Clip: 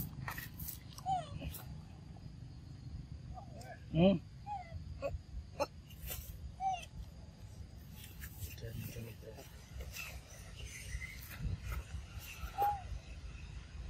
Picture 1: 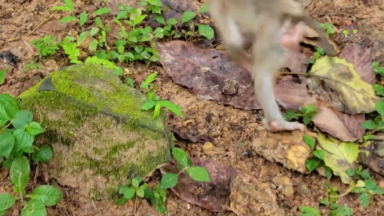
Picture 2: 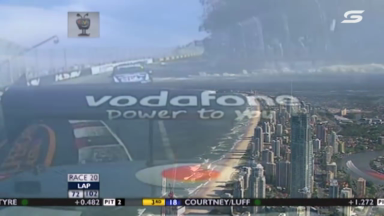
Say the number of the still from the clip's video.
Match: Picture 1